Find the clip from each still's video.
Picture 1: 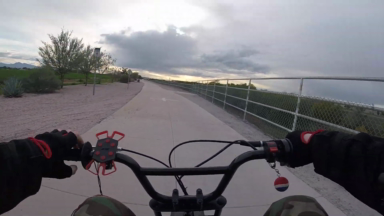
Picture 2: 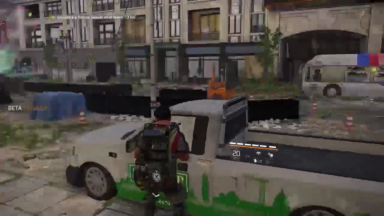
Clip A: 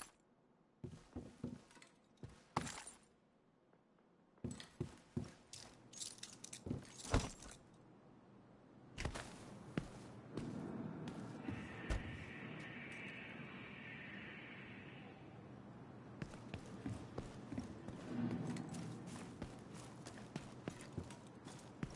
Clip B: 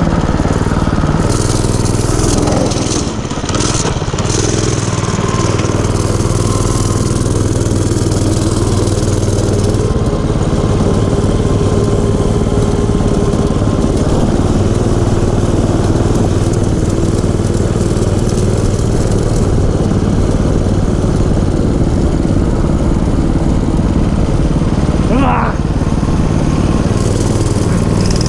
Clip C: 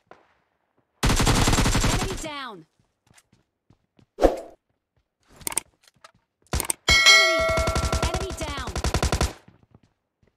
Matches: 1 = B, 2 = A